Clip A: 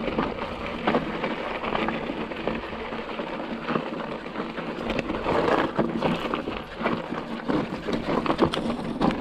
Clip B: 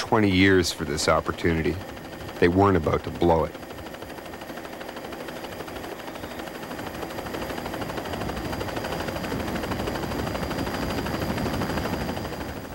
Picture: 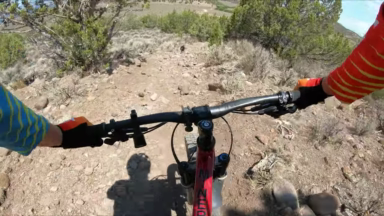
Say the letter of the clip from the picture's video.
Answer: A